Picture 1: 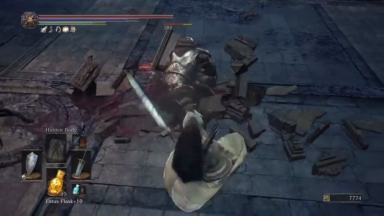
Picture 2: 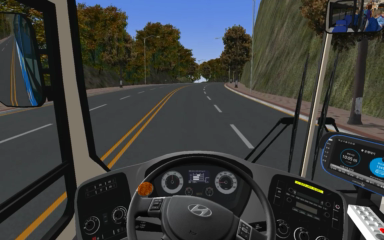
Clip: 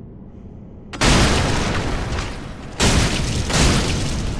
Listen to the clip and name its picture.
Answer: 1